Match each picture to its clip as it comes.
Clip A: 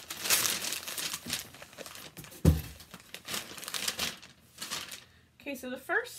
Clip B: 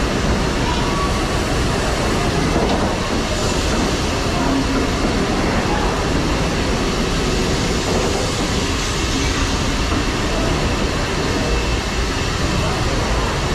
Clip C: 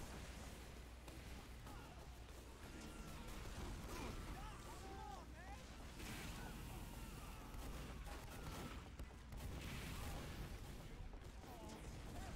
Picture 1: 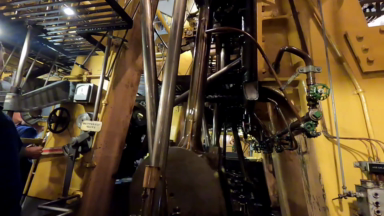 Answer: B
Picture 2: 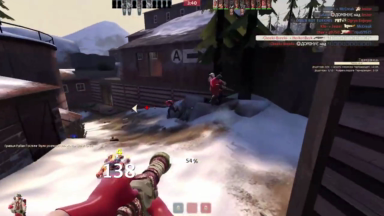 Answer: C